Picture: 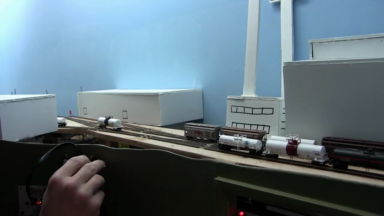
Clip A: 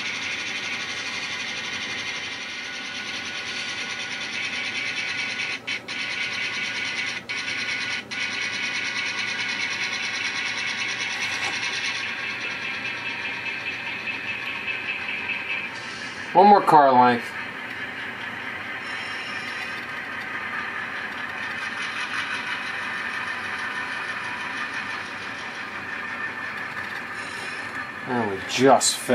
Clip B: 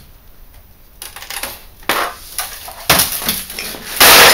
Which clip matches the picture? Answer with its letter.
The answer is A